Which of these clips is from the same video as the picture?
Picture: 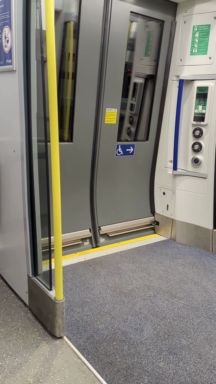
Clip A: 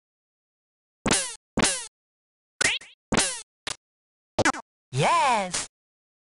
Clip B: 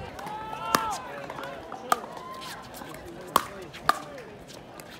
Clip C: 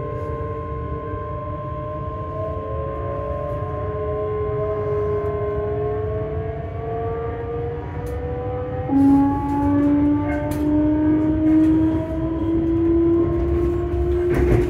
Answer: C